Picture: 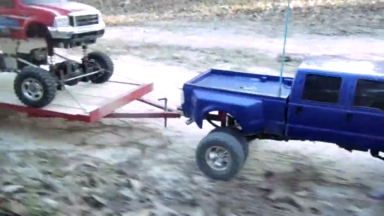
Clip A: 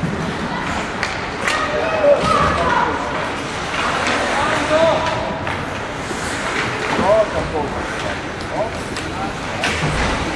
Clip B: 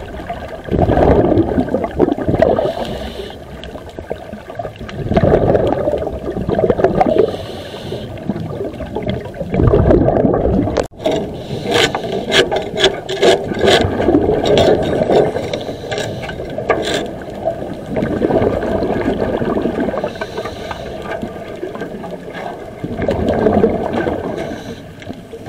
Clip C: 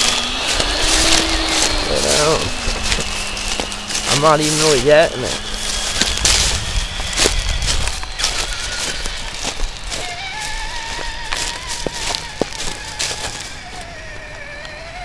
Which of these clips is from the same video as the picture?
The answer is C